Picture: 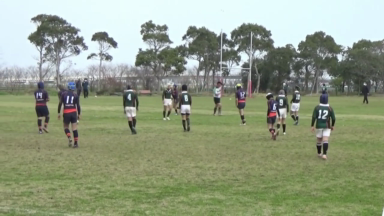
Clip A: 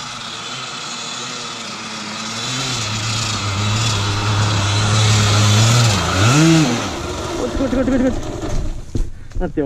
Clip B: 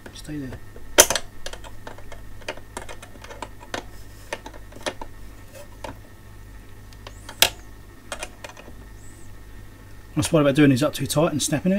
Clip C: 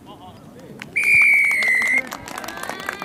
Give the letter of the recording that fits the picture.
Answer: C